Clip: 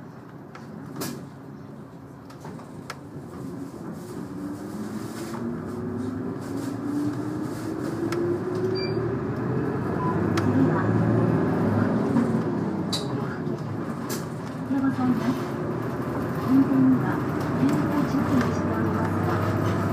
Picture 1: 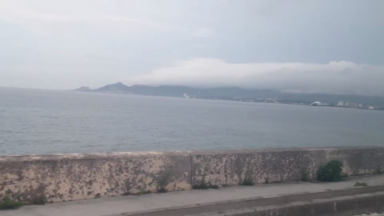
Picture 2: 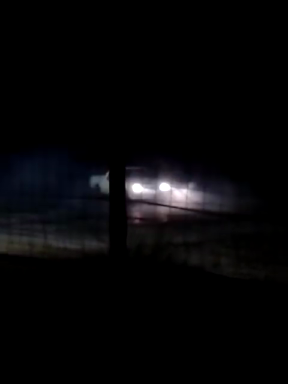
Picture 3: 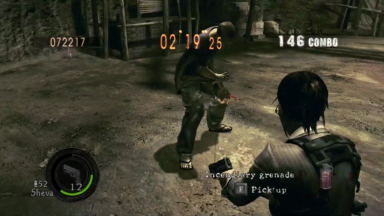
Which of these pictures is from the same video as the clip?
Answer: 1